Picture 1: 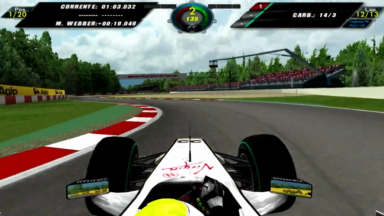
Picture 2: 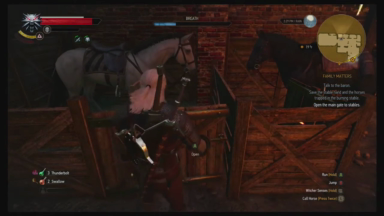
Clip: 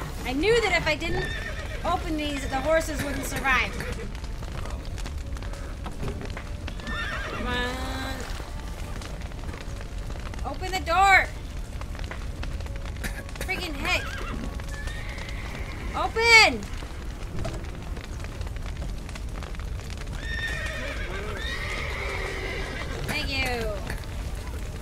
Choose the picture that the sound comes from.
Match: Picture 2